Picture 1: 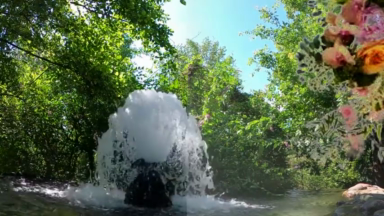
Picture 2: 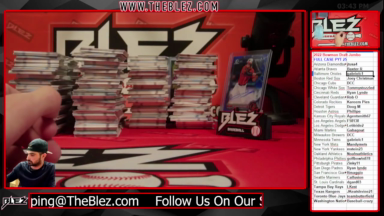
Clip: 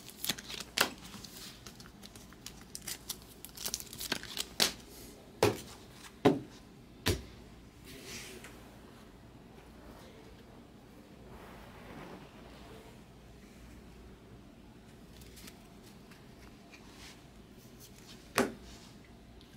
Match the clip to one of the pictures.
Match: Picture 2